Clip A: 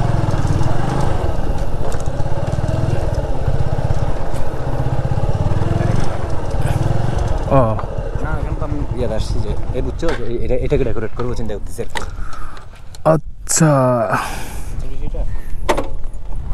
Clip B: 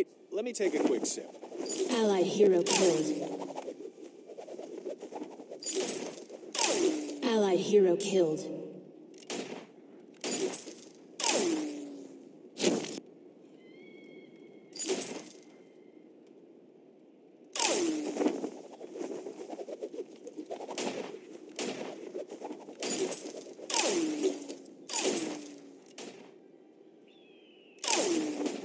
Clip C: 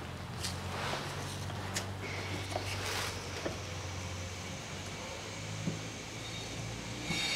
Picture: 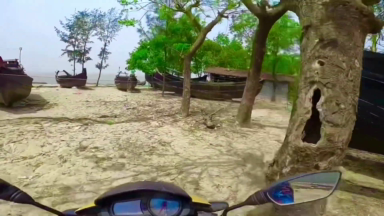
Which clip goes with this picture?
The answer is A